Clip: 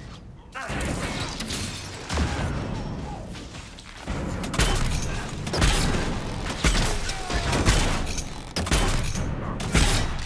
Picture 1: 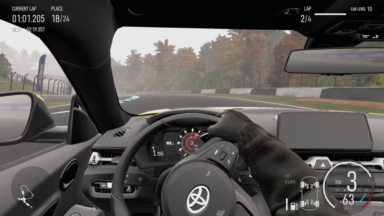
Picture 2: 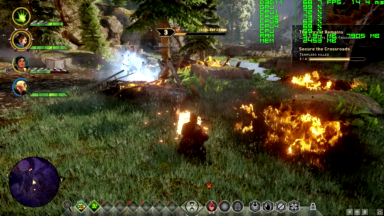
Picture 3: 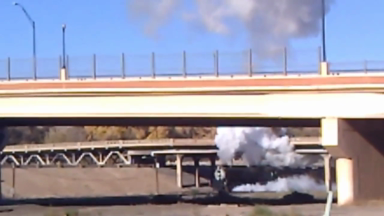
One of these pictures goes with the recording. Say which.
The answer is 2